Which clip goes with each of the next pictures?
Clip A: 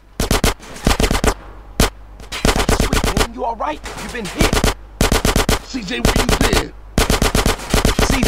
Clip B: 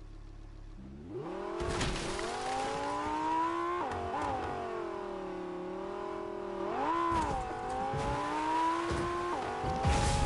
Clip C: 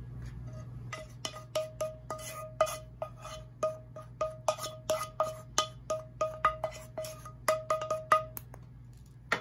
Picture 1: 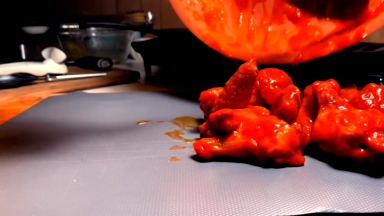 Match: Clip C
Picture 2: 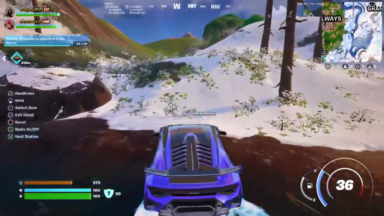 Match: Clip B